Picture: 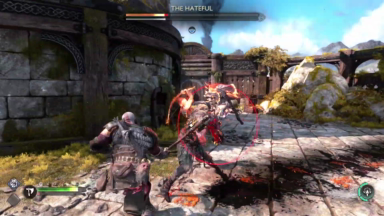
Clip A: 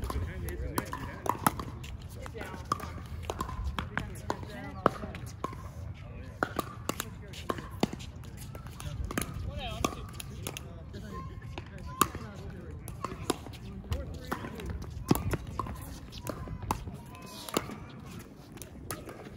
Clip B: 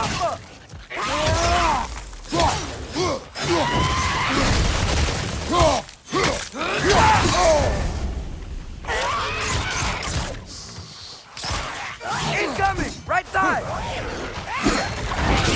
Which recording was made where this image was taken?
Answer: B